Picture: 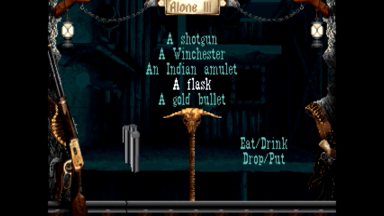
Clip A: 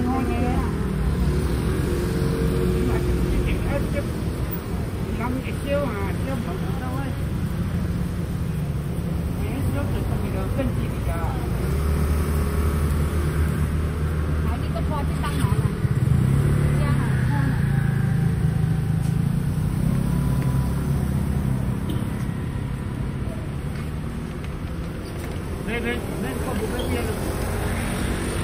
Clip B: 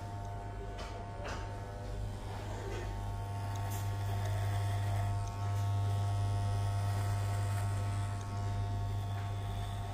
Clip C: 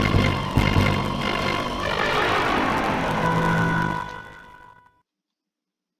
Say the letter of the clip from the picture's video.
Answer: C